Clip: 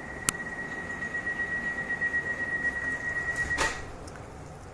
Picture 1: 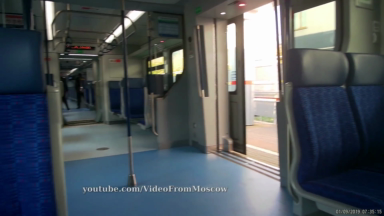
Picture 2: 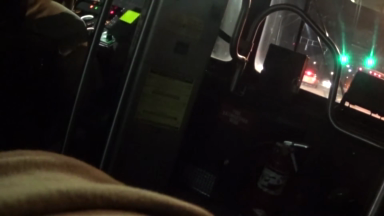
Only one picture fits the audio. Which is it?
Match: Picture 1